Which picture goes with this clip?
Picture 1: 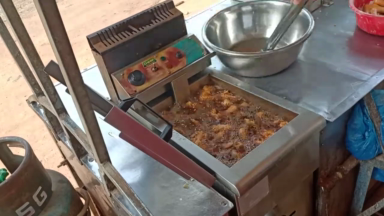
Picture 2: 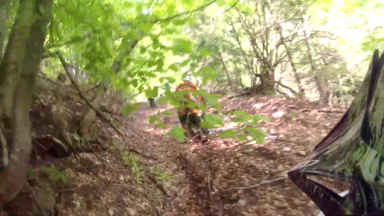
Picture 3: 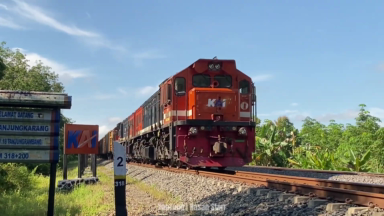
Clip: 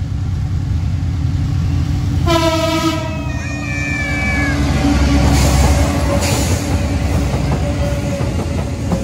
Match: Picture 3